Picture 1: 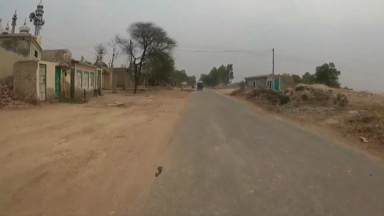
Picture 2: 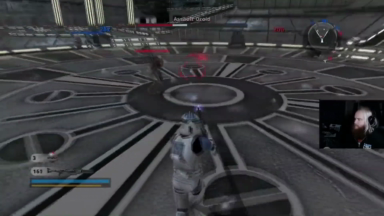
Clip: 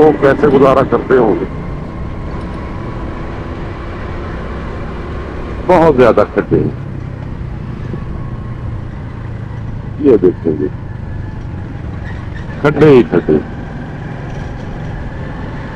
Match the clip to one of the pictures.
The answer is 1